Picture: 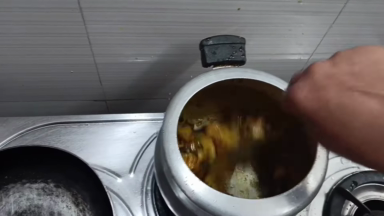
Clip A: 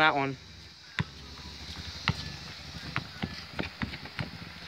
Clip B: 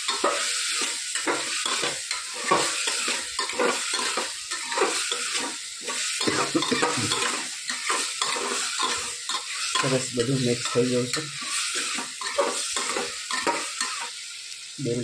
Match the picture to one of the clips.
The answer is B